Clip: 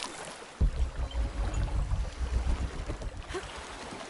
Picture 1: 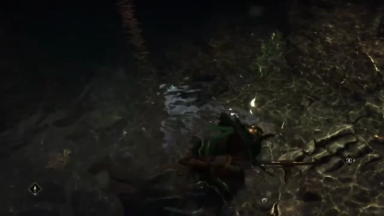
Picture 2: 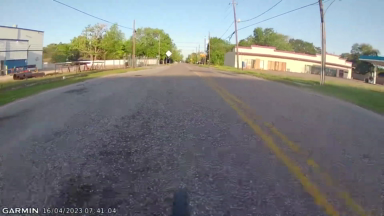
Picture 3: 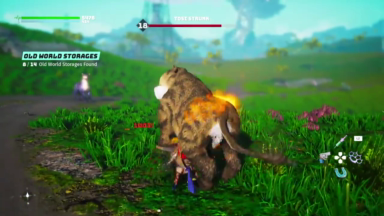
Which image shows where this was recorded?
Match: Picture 1